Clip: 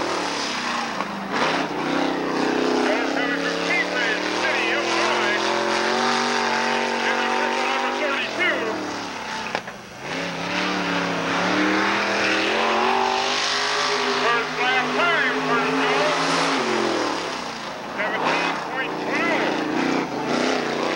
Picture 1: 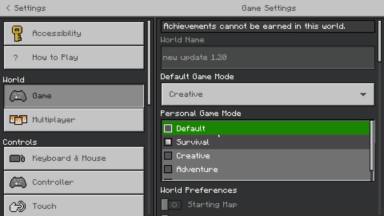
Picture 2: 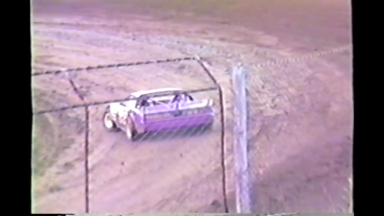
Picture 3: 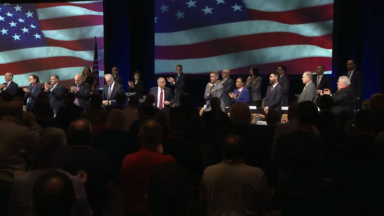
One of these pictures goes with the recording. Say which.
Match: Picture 2